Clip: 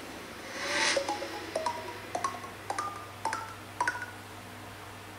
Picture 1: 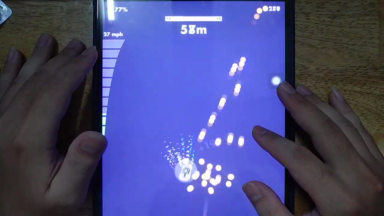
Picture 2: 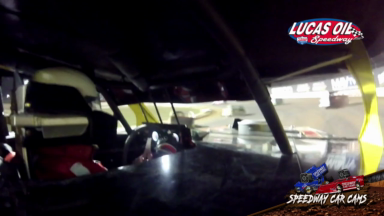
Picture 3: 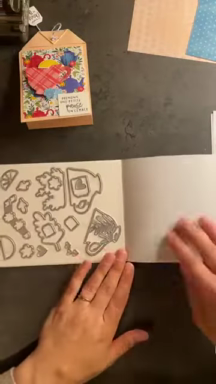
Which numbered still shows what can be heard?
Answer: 1